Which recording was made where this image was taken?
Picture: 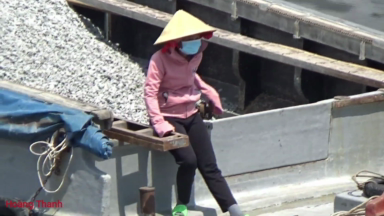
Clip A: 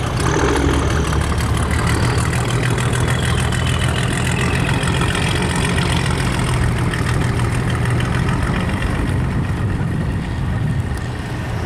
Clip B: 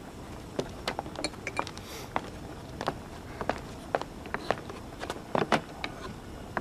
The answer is A